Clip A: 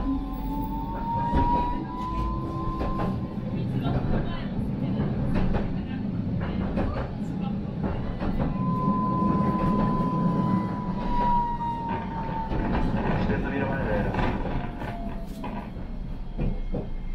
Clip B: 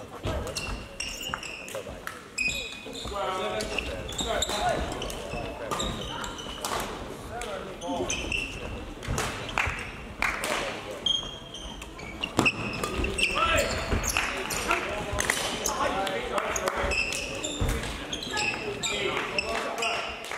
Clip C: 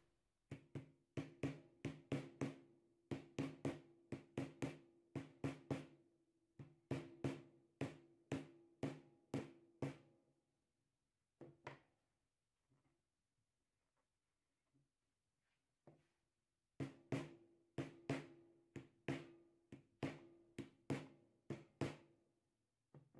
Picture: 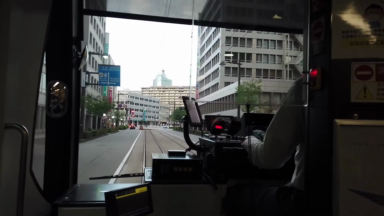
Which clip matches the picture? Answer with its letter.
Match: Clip A